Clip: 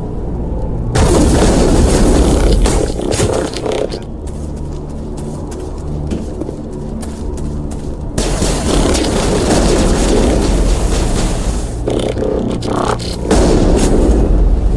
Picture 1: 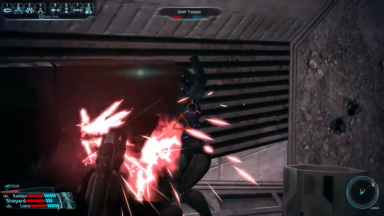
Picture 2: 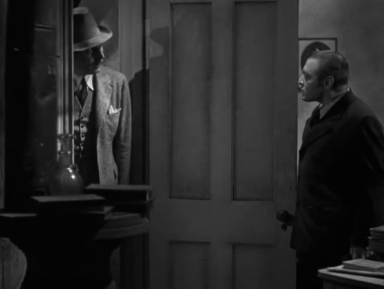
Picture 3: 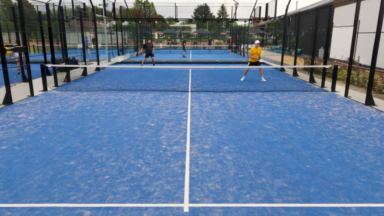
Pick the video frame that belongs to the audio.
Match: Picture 1